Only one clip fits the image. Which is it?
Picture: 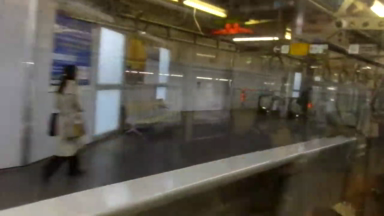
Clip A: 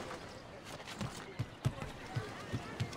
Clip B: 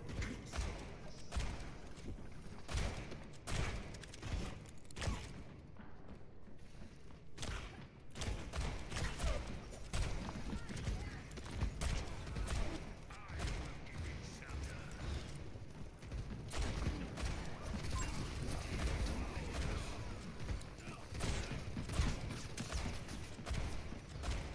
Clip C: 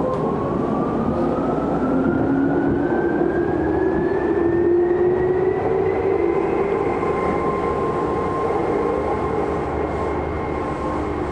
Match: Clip C